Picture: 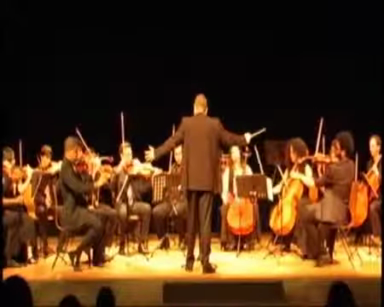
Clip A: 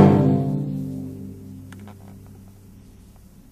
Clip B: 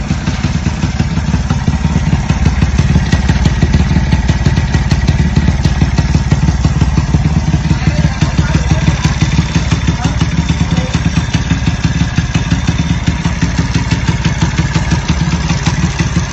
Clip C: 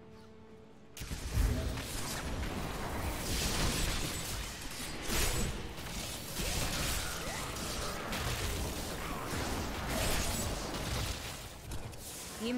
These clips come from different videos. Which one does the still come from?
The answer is A